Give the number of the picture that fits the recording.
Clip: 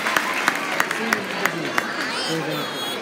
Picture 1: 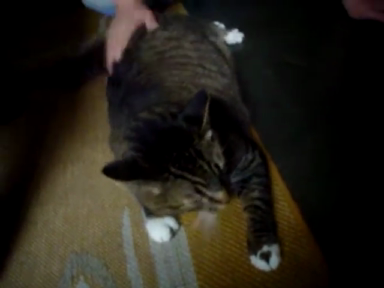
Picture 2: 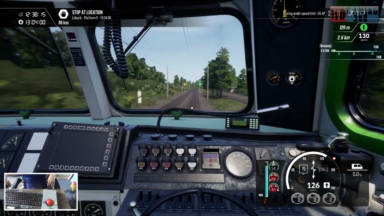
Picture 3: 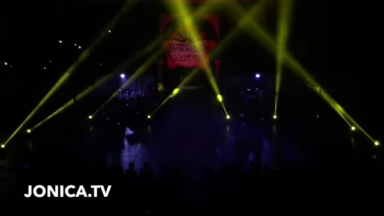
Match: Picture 3